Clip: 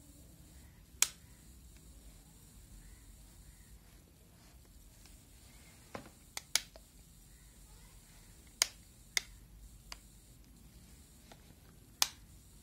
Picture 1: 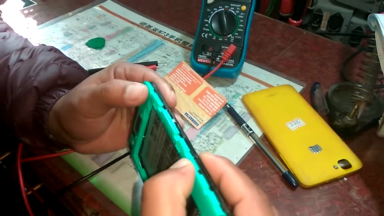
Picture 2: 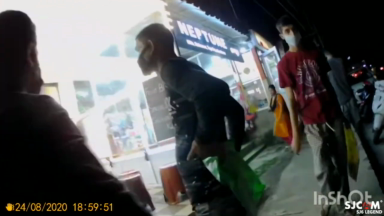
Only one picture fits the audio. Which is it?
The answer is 1